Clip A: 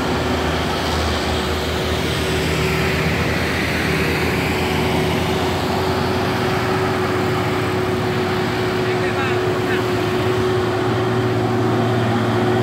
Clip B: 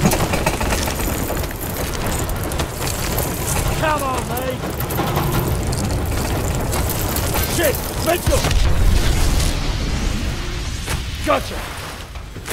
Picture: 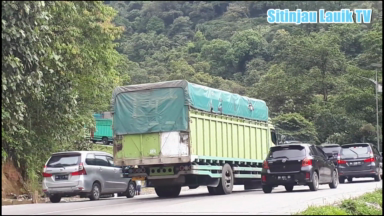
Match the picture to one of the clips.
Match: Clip A